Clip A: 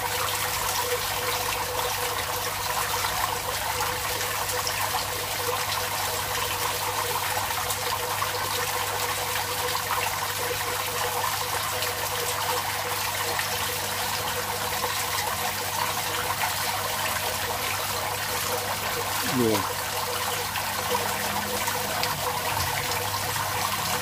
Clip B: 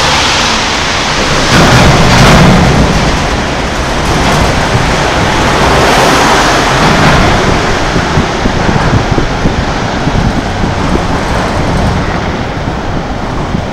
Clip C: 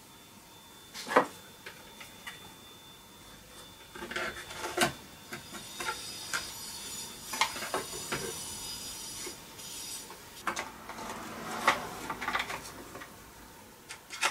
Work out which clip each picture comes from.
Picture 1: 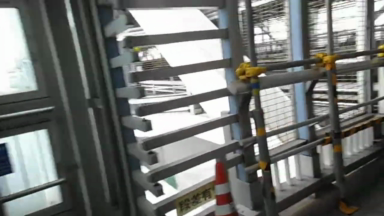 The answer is B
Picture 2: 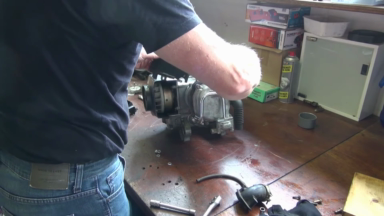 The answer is C